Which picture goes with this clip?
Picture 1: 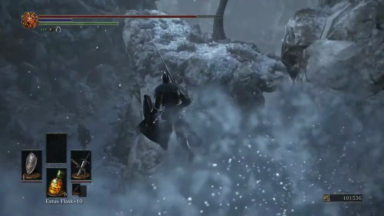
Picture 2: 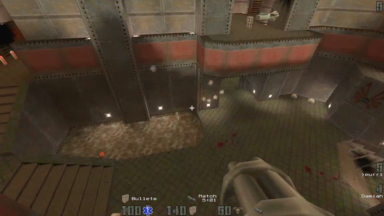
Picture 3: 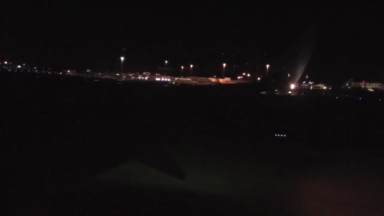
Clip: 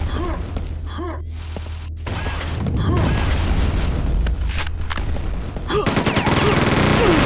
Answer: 2